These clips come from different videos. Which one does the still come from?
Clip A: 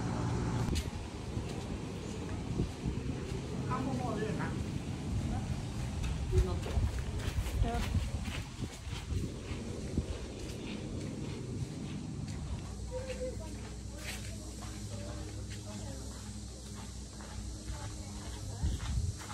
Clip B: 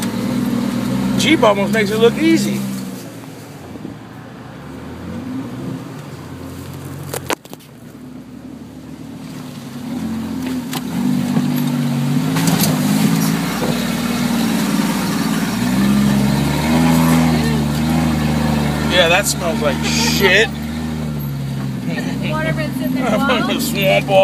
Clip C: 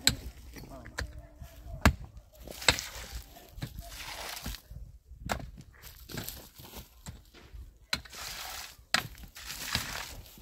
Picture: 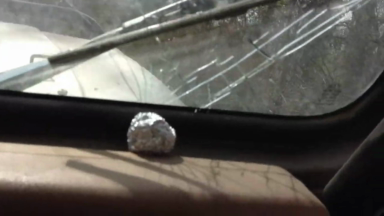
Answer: B